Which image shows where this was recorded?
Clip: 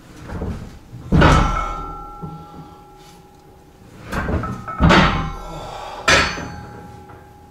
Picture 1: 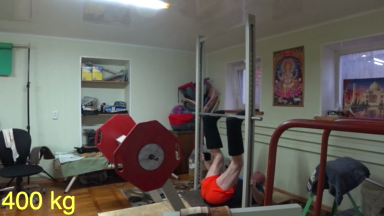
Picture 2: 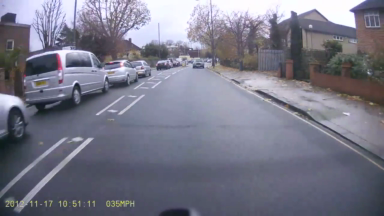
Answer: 1